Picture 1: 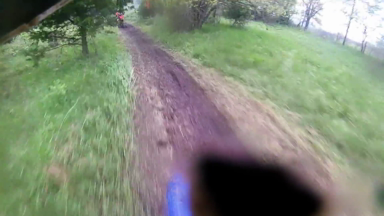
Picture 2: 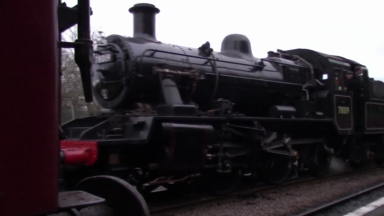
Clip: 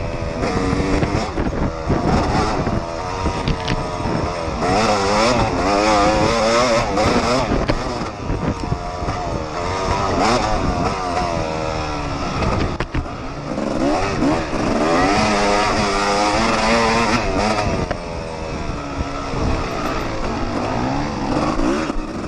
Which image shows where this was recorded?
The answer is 1